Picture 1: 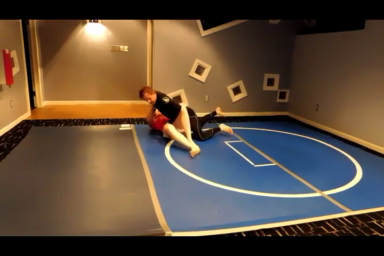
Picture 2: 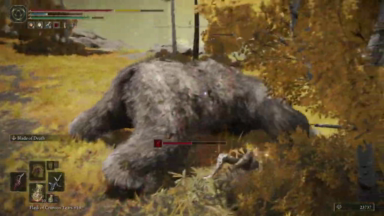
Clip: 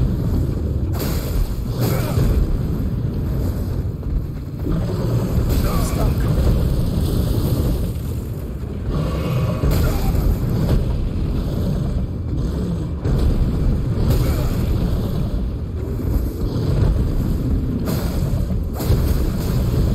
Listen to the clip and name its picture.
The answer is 2